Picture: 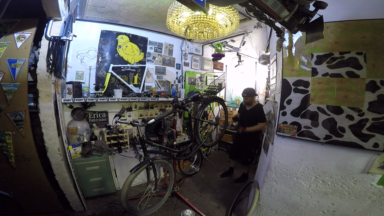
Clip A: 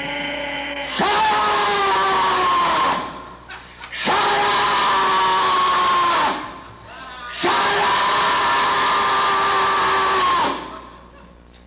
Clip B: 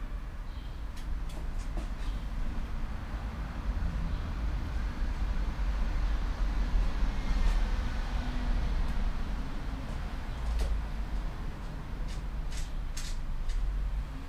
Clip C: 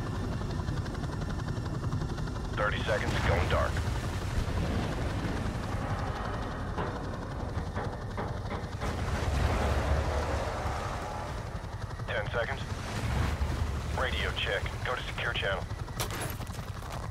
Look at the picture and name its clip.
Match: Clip B